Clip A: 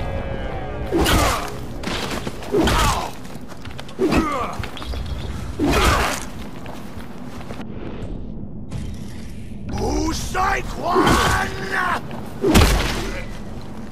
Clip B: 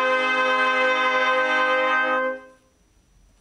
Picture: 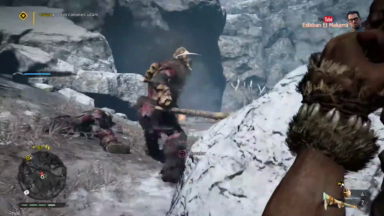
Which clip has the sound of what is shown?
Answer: A